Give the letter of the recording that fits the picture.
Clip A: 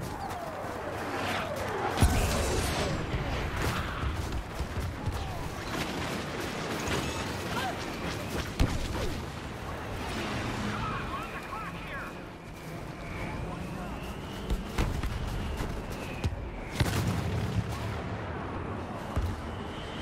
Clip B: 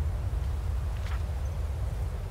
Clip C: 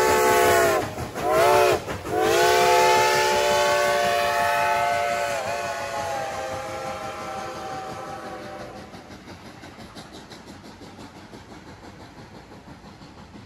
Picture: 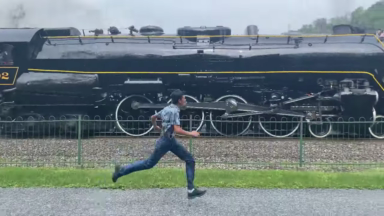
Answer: C